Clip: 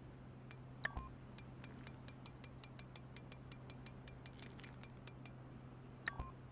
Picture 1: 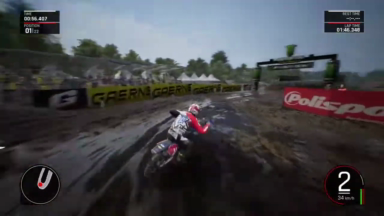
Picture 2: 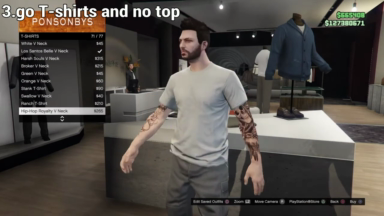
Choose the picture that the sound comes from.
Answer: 2